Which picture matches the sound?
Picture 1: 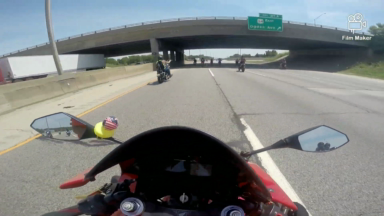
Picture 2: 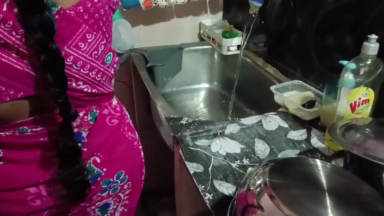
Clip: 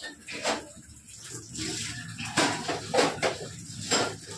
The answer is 2